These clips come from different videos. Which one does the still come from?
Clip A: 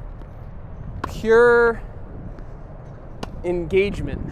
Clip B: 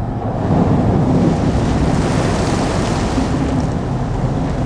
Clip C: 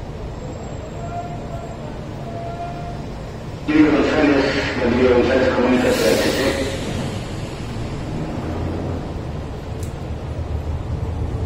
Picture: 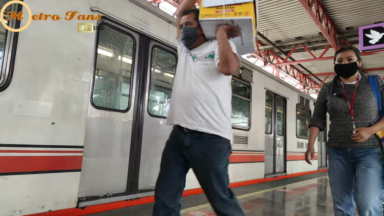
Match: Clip C